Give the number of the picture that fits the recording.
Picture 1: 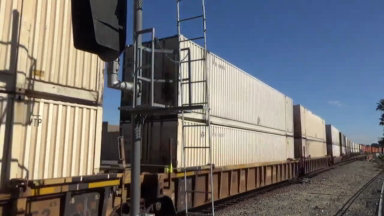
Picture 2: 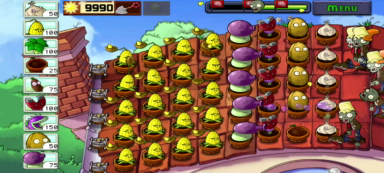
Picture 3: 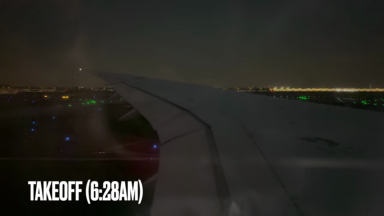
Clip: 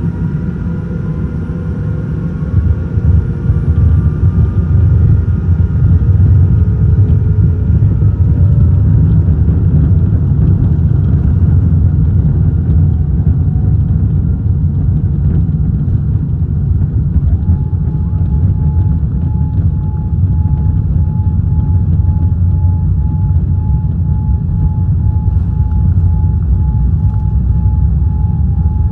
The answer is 3